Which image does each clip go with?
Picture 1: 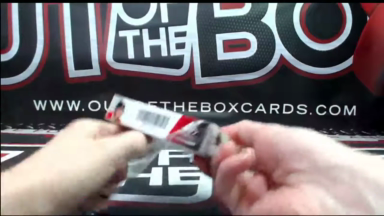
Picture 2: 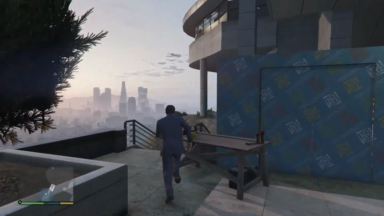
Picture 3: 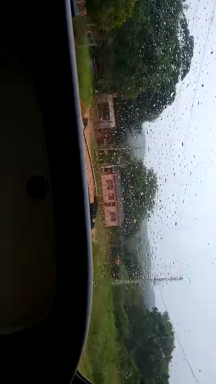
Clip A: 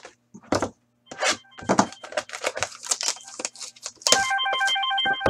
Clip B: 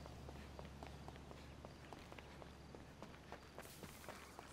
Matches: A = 1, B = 2